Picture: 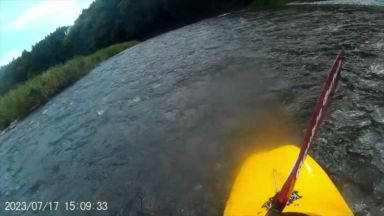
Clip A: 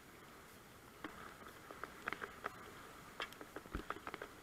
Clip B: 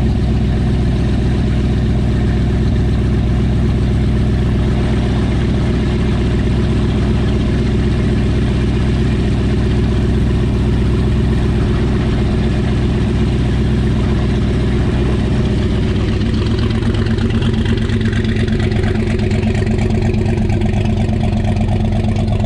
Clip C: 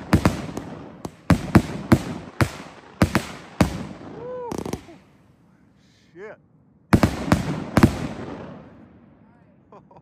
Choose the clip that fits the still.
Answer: A